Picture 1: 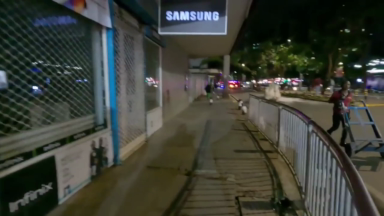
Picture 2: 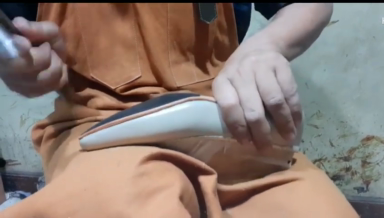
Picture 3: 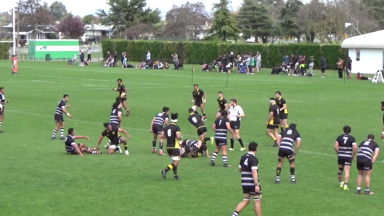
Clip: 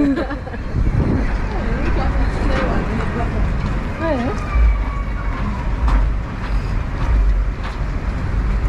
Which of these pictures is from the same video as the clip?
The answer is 1